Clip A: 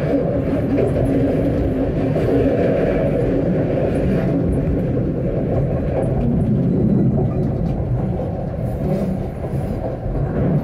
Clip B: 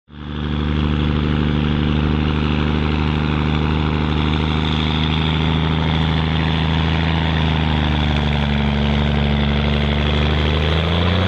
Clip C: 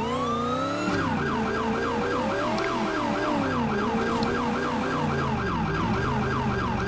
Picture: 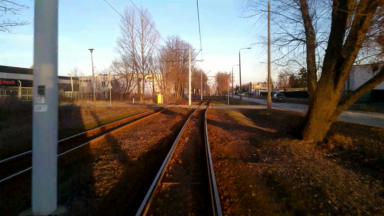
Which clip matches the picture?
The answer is A